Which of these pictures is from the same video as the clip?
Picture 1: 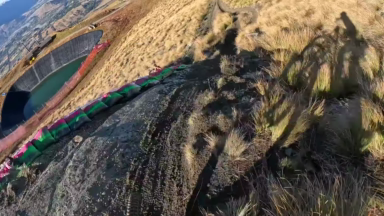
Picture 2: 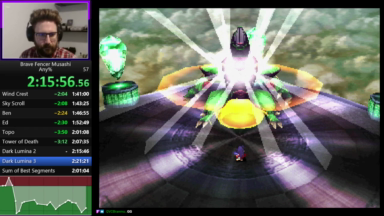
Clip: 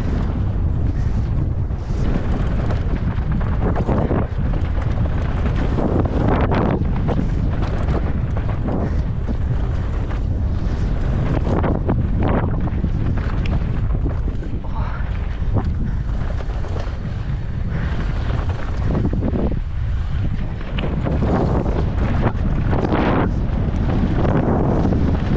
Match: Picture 1